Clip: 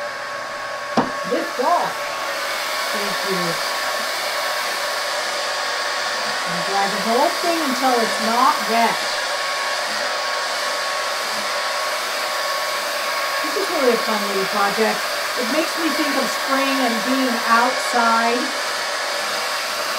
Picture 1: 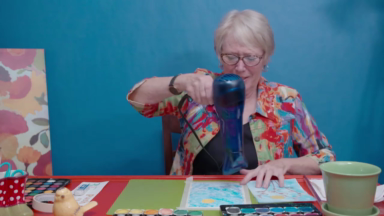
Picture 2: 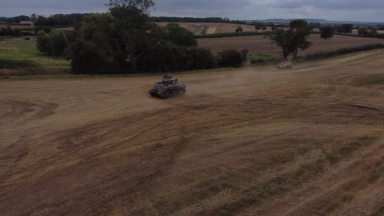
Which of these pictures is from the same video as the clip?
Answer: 1